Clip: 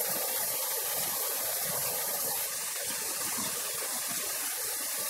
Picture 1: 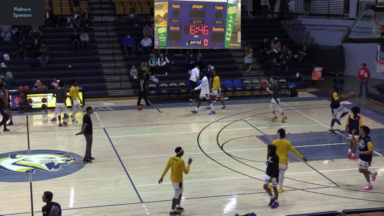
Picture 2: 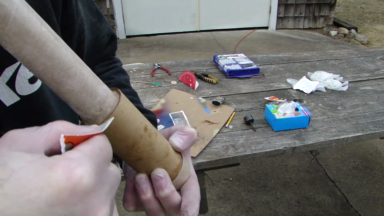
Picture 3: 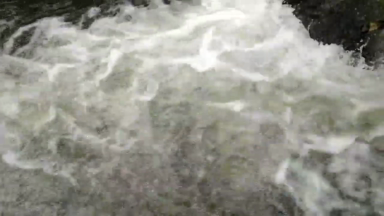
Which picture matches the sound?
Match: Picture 3